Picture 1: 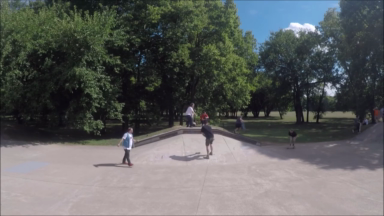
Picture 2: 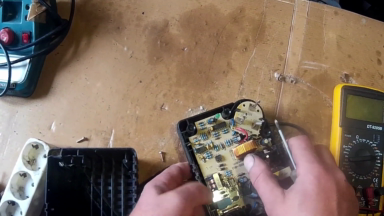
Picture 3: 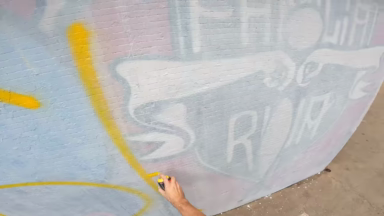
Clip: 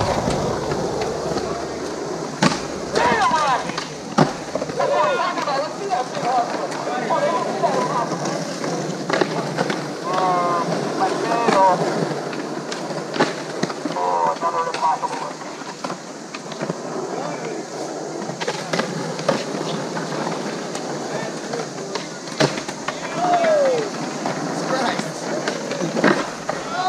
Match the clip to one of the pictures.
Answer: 1